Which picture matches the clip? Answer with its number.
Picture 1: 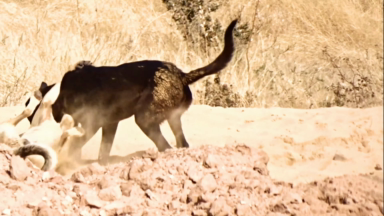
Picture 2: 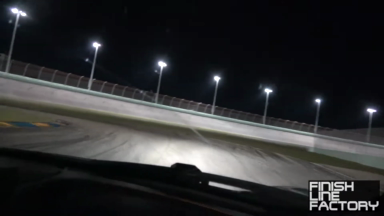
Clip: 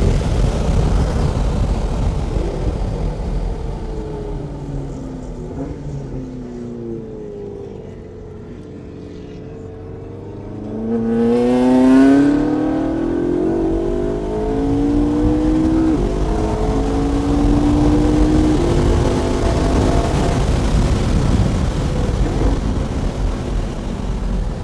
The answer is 2